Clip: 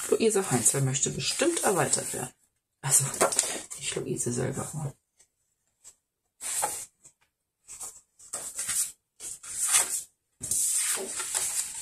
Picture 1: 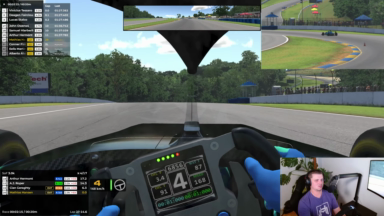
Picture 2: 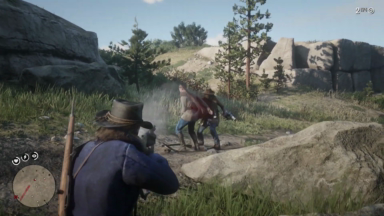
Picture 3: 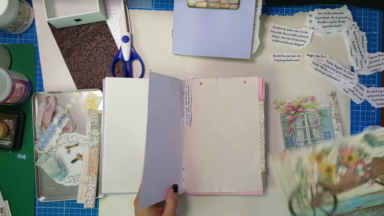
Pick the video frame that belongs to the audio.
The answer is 3